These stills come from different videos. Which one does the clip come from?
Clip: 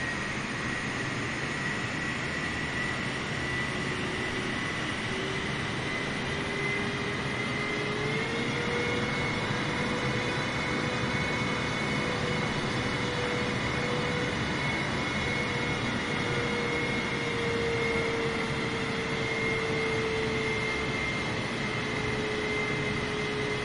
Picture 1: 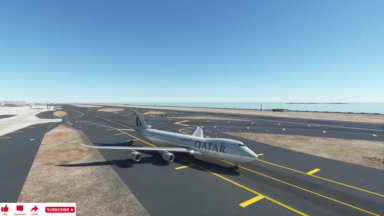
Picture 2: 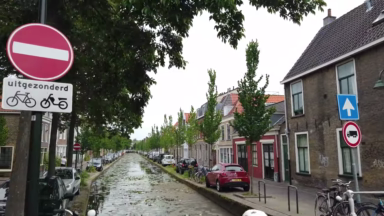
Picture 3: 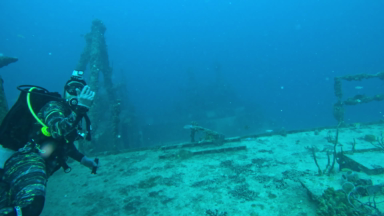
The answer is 1